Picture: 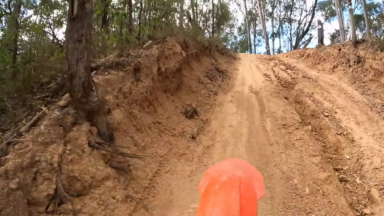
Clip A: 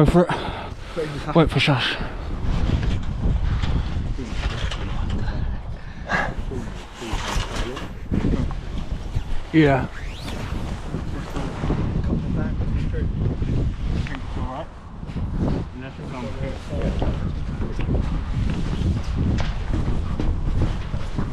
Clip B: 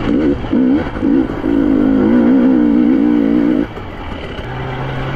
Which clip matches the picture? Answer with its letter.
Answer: B